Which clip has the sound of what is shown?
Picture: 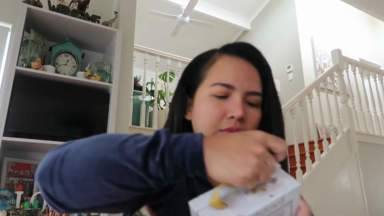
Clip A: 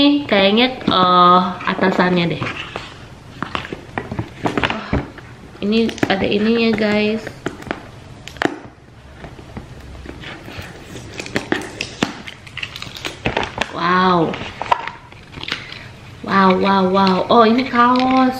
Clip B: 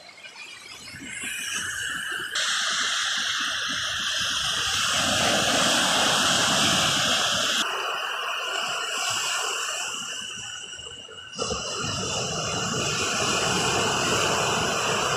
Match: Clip A